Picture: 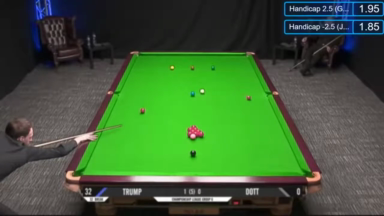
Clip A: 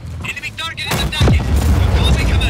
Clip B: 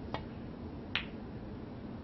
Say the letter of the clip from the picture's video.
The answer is B